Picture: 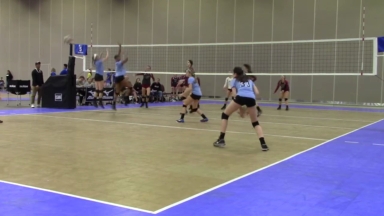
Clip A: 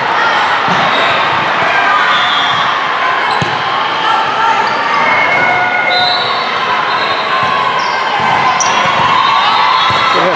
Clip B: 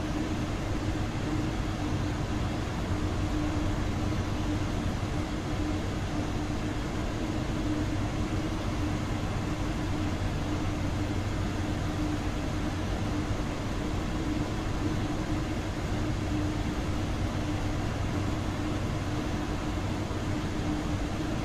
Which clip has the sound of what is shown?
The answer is A